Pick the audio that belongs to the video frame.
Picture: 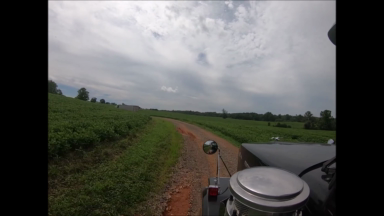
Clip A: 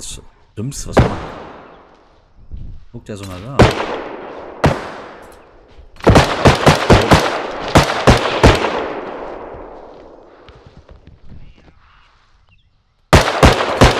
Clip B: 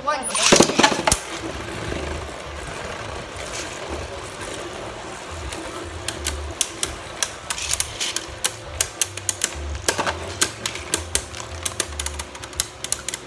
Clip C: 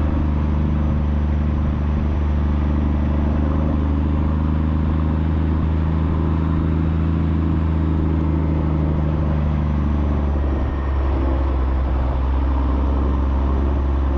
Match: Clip C